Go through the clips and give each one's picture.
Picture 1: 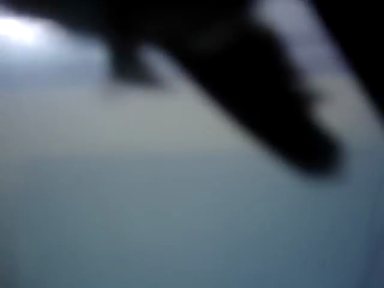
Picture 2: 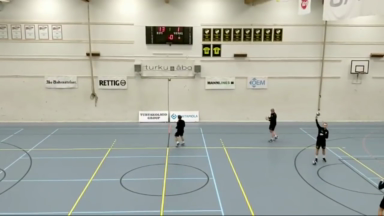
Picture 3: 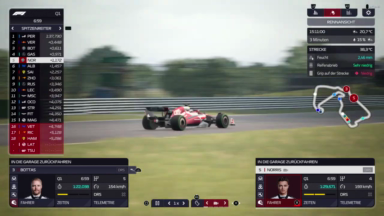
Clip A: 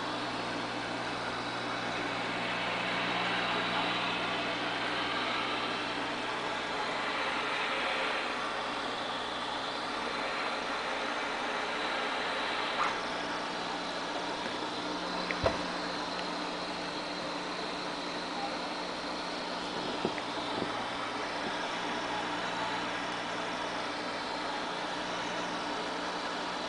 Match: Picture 1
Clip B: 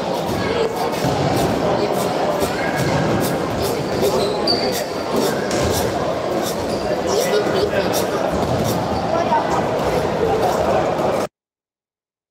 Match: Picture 2